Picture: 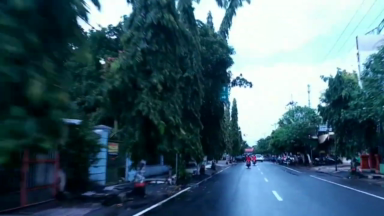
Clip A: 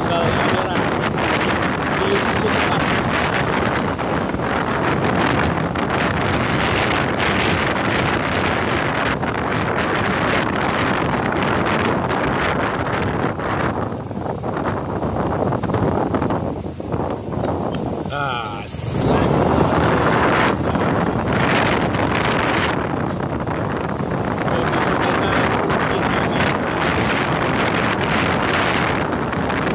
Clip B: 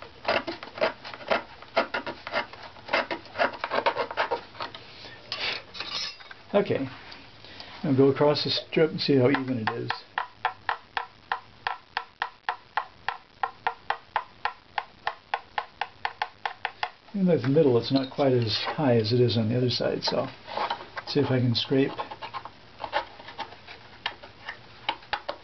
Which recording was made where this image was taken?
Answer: A